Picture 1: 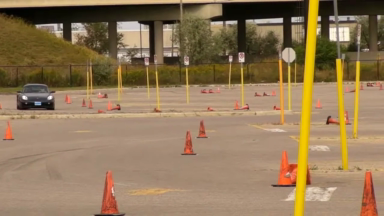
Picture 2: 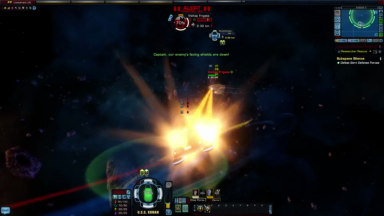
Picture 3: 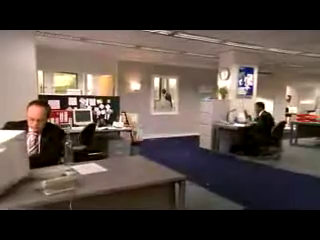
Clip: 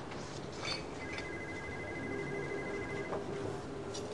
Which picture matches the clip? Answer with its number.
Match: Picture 3